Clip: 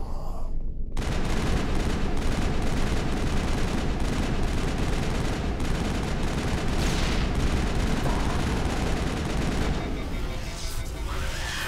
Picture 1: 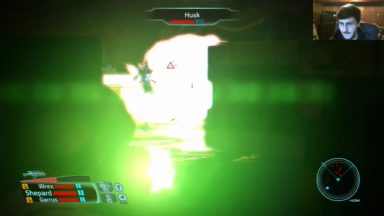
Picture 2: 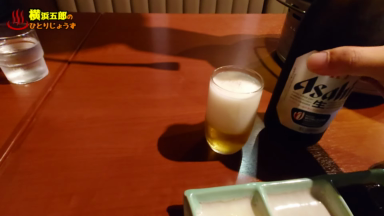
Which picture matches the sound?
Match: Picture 1